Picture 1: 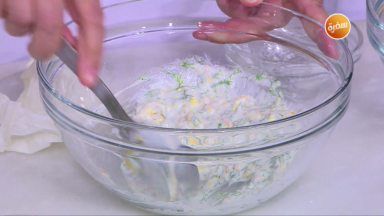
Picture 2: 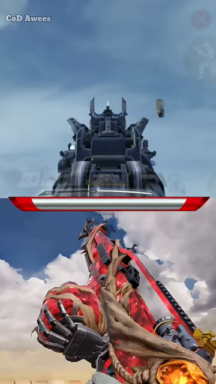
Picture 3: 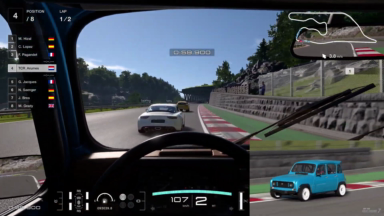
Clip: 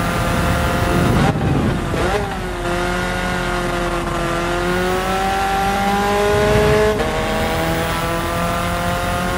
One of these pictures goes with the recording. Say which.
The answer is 3